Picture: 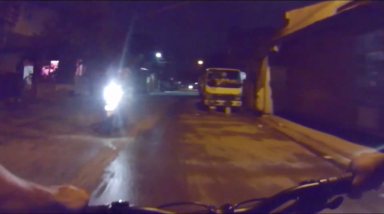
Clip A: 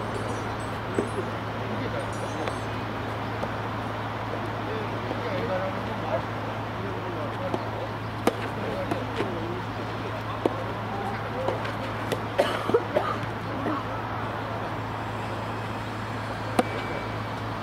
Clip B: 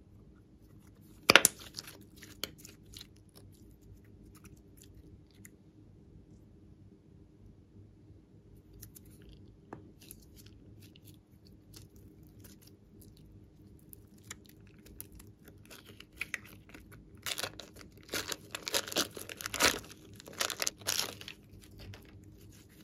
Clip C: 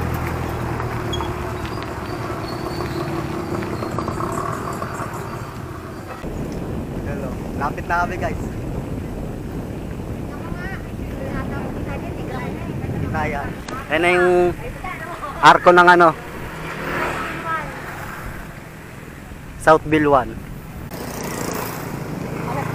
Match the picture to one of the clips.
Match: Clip C